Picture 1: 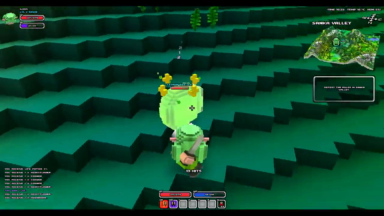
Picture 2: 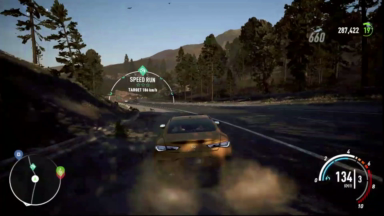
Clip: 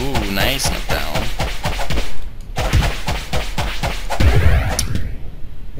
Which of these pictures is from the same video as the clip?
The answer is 1